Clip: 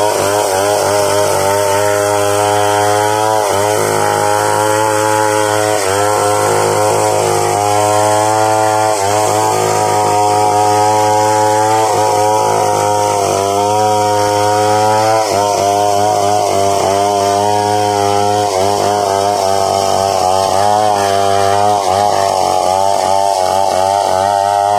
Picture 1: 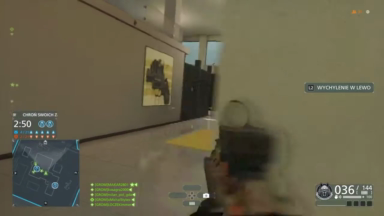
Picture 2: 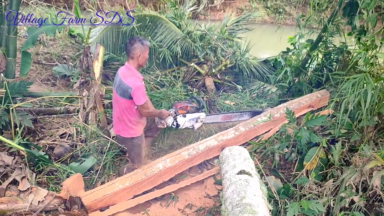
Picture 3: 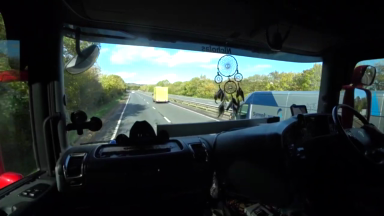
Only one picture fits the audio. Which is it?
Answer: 2